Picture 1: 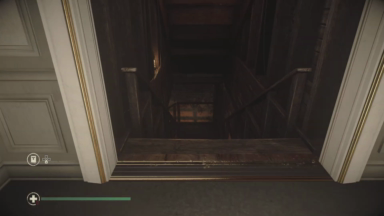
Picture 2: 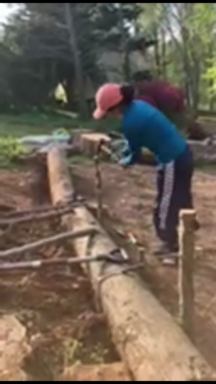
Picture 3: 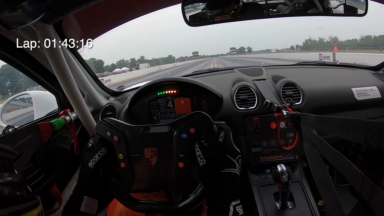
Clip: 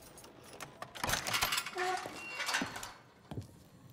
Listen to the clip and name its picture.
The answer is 1